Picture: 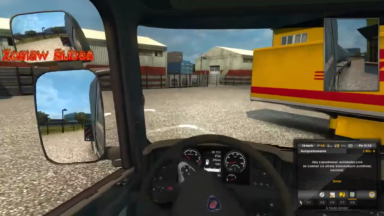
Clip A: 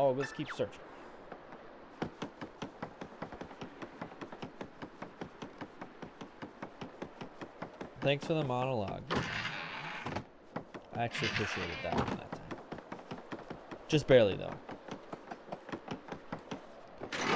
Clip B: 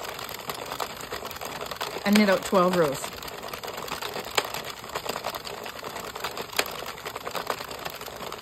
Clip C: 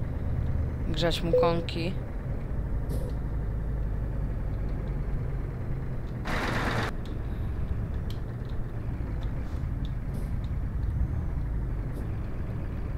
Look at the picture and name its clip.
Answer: C